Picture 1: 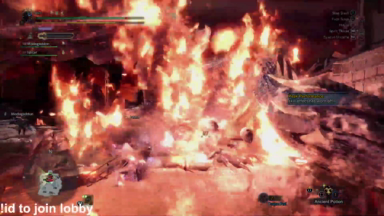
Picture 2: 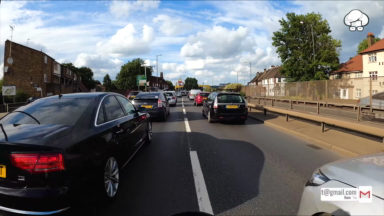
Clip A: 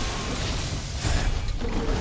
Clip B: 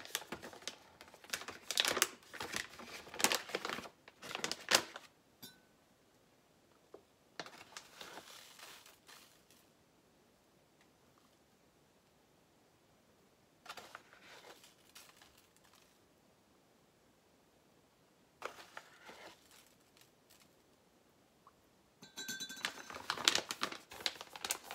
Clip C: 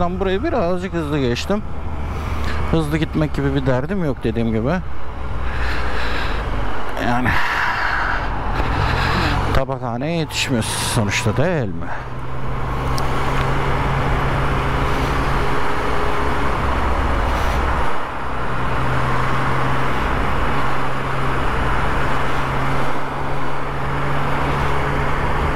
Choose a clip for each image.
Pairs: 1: A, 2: C